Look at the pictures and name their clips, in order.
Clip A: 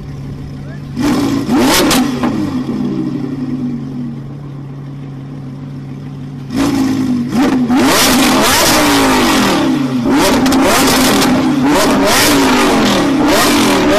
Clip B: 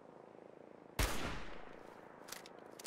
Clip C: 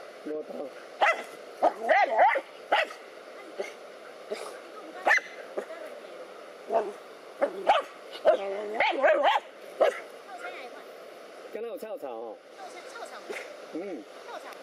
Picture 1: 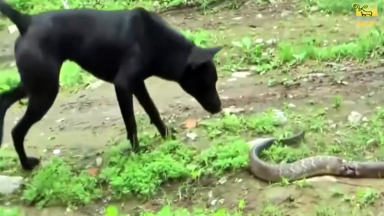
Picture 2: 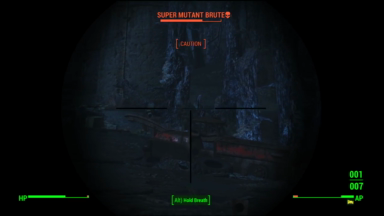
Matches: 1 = C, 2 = B